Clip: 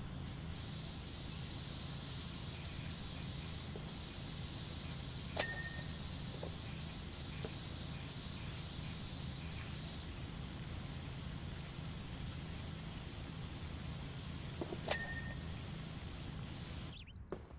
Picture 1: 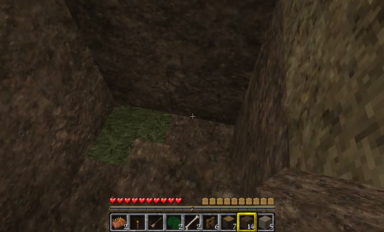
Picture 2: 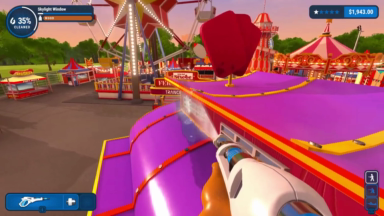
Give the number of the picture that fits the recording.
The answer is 2